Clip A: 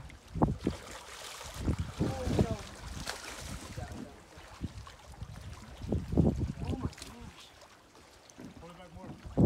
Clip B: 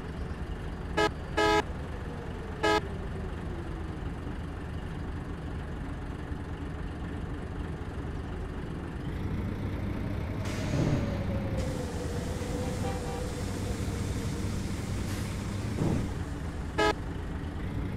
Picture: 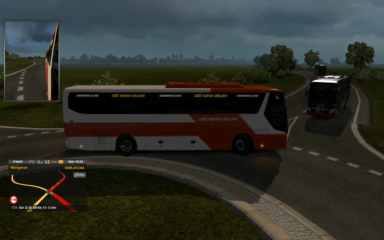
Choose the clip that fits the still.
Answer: B